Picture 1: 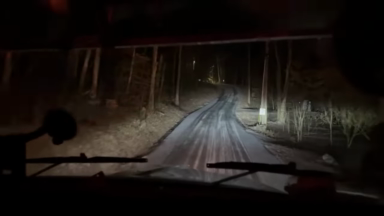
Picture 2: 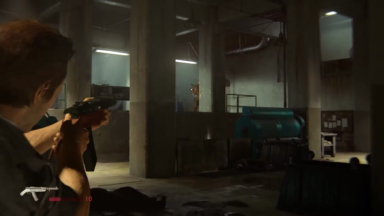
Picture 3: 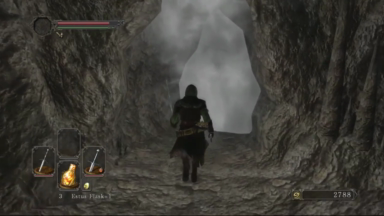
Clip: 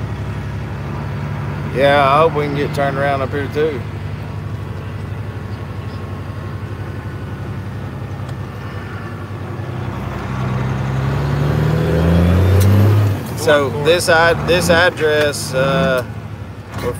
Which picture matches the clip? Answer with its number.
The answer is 1